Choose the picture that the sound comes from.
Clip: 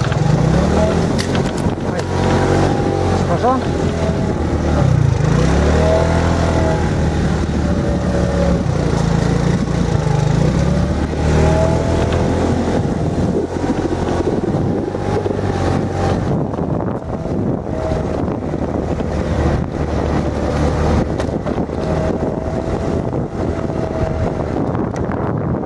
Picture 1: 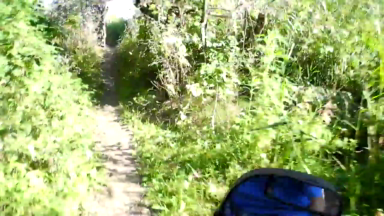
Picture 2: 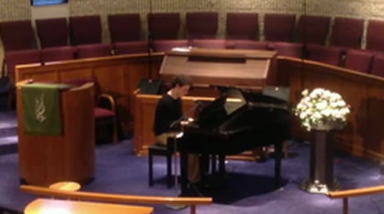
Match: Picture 1